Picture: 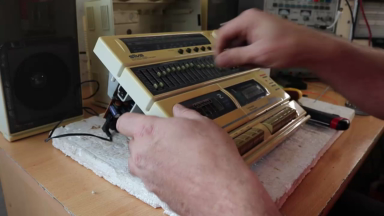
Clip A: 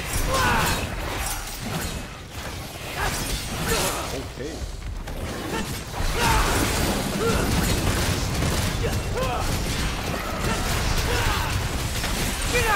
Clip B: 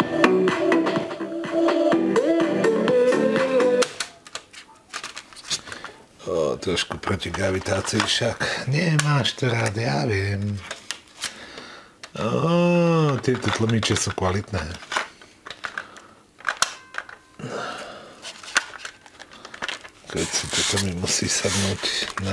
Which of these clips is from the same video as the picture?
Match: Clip B